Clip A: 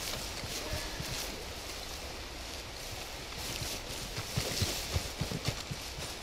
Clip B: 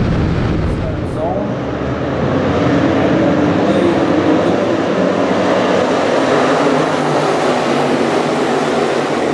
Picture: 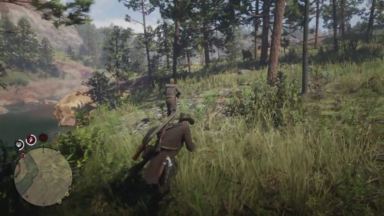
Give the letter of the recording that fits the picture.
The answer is A